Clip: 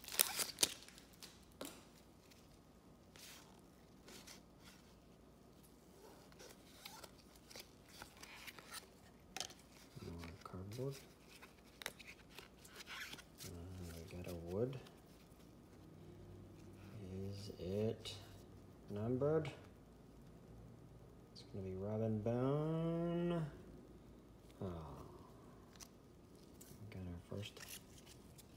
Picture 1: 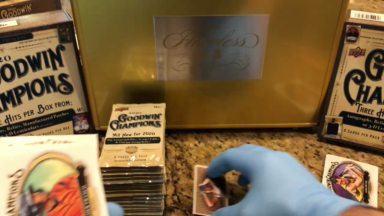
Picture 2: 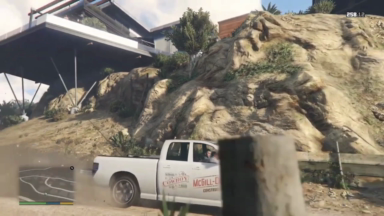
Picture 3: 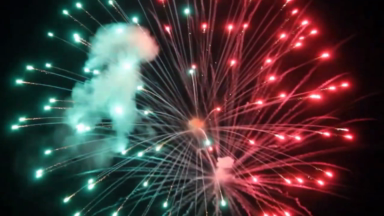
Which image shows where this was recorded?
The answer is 1